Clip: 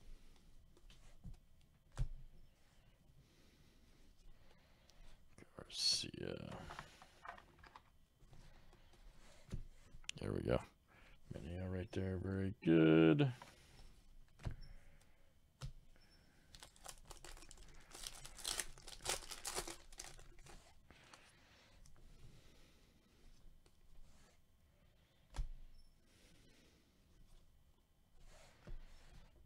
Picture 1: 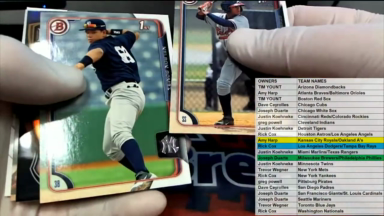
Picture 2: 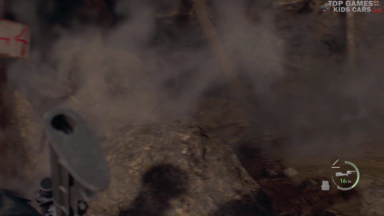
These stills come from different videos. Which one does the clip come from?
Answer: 1